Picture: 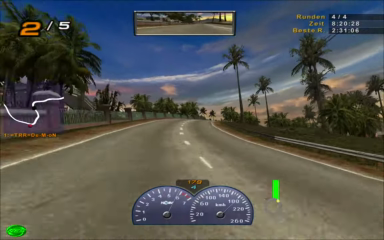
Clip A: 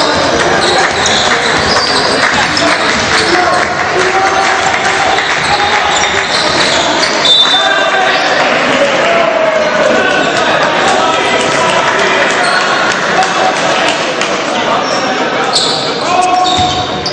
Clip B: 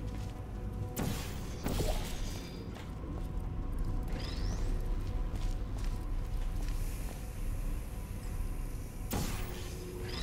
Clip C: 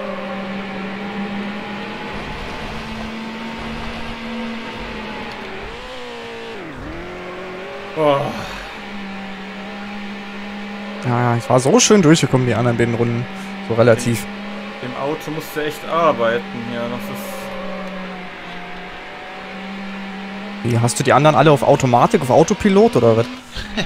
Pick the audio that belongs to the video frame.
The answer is C